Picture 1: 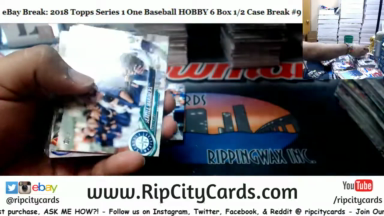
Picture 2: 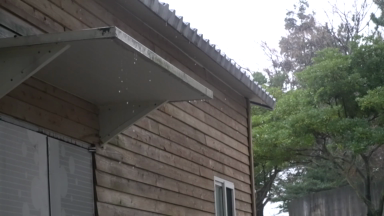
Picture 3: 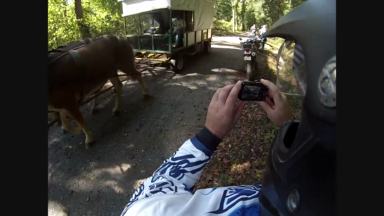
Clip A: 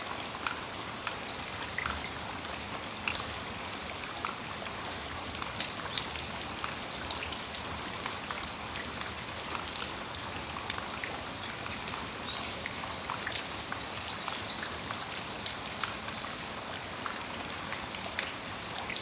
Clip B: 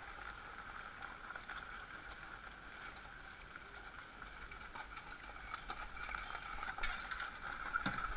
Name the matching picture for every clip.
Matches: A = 2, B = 3